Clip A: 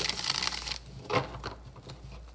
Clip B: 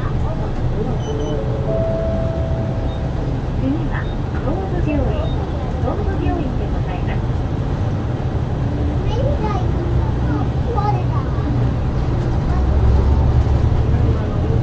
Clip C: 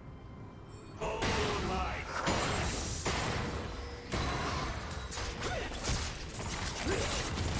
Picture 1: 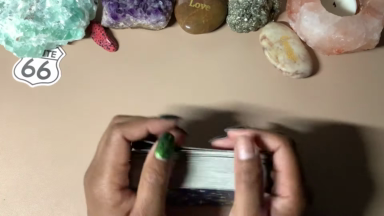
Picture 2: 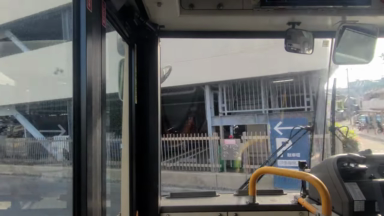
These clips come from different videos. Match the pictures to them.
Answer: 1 A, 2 B